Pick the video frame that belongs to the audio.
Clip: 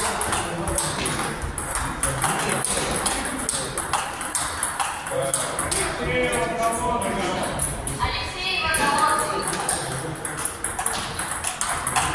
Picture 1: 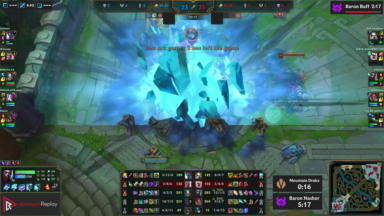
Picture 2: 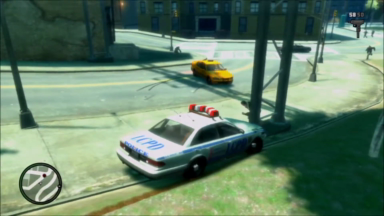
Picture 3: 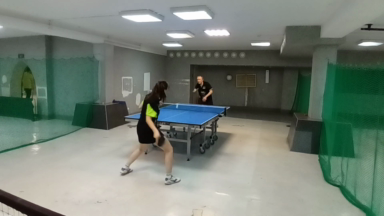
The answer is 3